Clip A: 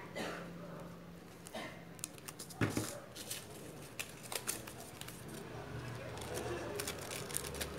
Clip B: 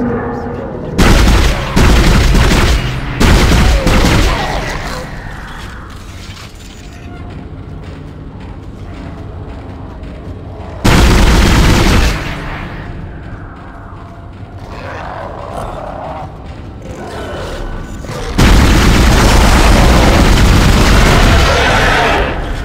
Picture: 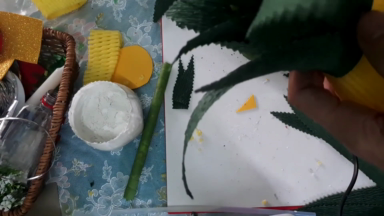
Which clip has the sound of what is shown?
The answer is A